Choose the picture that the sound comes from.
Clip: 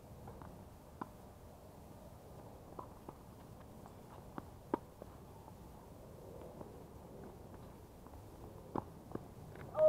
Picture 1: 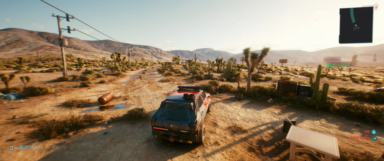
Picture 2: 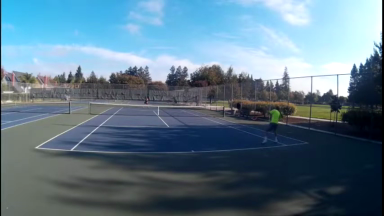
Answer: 2